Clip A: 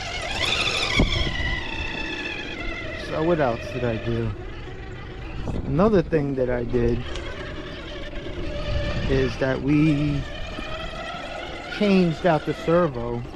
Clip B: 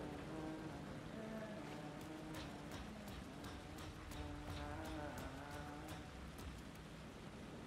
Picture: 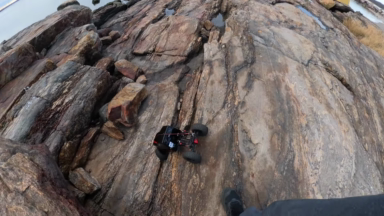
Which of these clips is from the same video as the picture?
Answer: A